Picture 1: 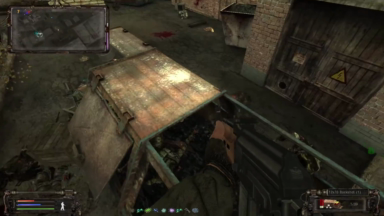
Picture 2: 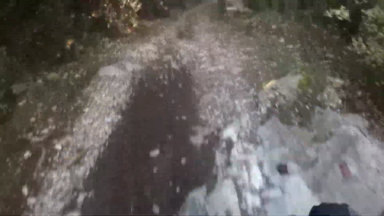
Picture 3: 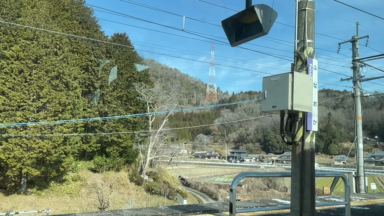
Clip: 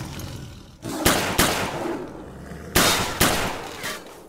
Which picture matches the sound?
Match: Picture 1